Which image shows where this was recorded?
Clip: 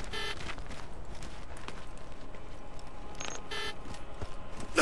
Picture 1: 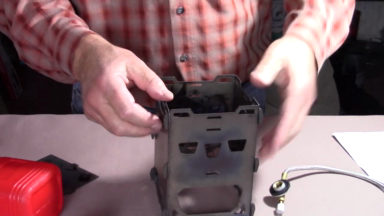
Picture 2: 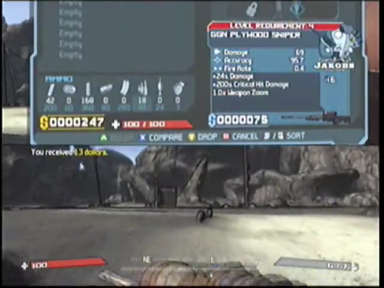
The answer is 2